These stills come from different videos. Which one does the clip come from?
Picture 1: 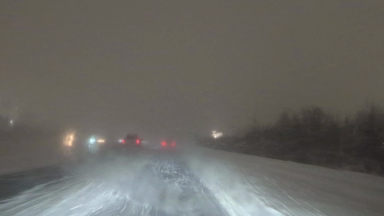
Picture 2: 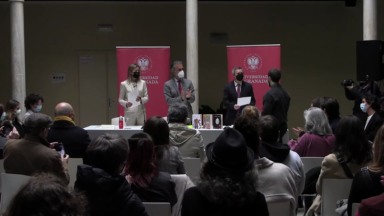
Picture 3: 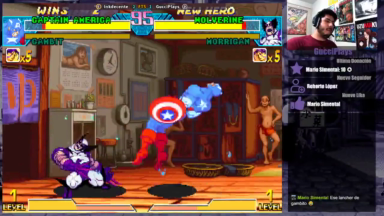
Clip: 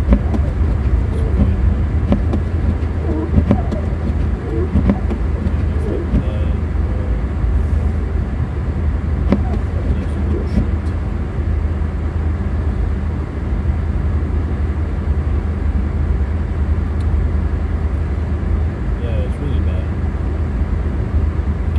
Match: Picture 1